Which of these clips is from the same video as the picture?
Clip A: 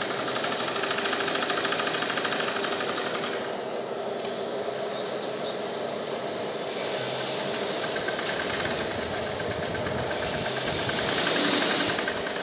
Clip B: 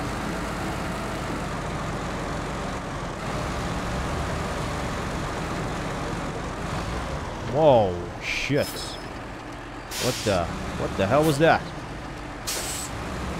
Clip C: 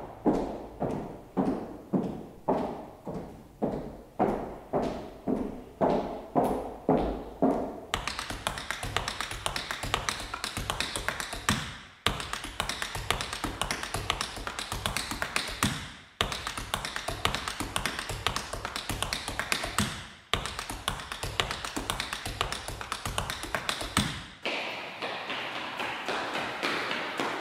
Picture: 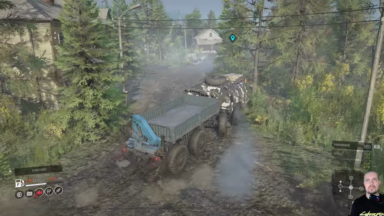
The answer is B